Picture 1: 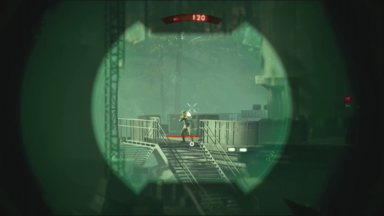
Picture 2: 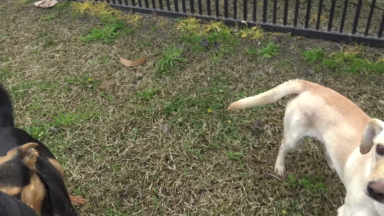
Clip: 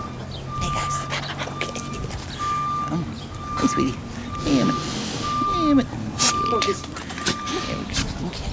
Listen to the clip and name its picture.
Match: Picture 2